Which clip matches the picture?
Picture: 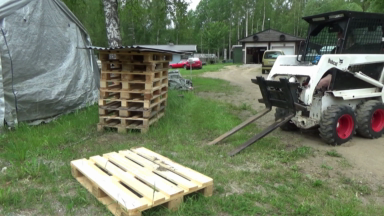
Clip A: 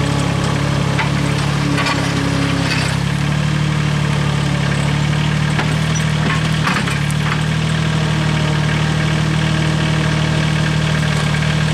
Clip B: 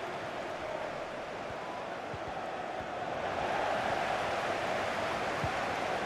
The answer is A